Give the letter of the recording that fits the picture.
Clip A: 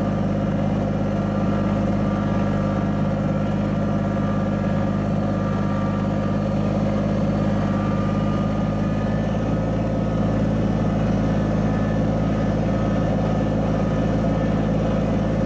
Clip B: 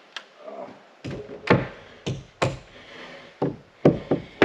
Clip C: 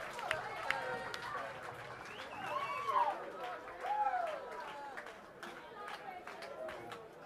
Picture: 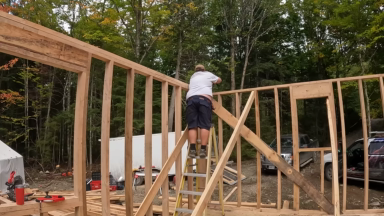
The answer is B